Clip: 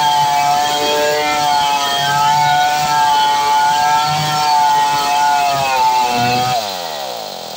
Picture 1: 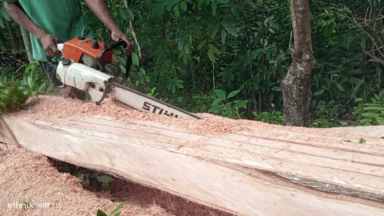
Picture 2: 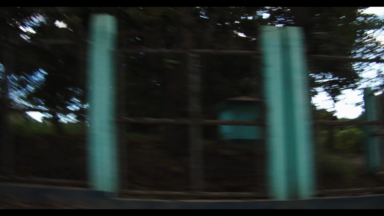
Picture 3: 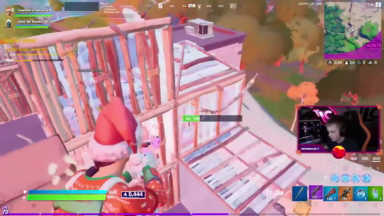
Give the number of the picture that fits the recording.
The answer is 1